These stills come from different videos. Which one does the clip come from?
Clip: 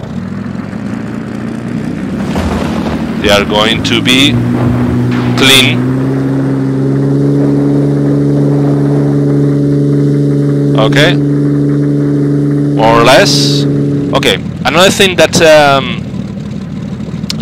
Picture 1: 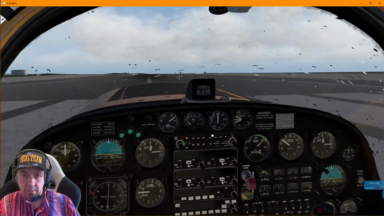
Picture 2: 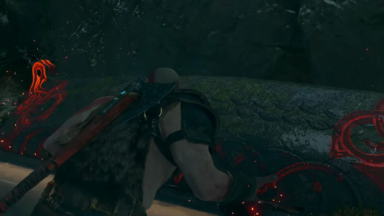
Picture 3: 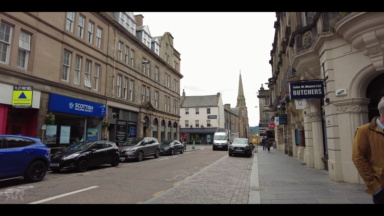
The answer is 1